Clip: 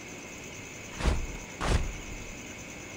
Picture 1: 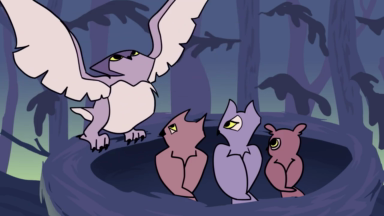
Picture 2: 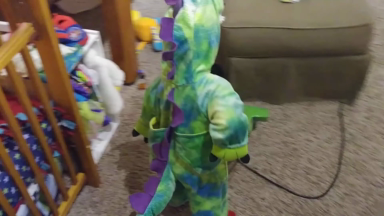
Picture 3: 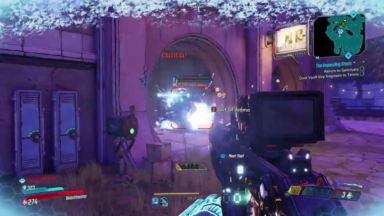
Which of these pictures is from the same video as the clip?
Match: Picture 1